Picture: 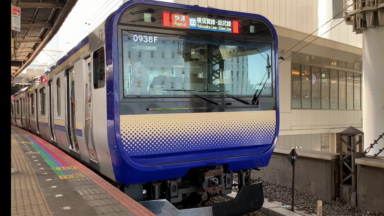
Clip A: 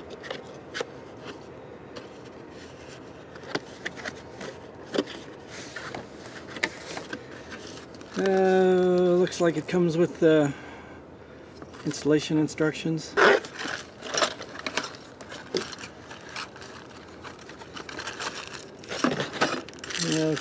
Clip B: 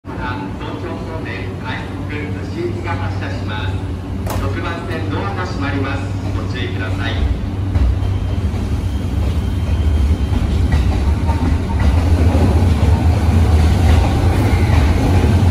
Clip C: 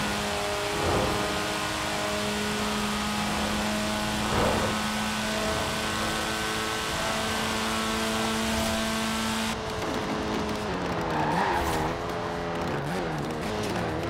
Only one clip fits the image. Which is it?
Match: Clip B